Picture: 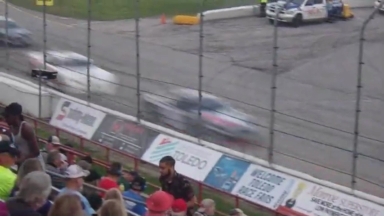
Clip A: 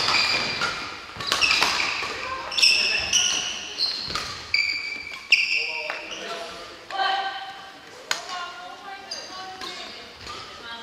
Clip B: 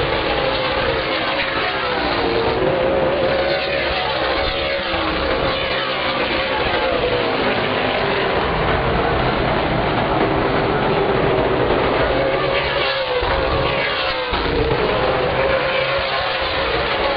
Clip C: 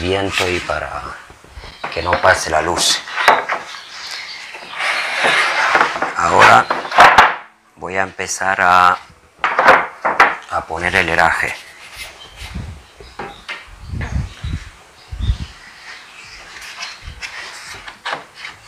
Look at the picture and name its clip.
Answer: B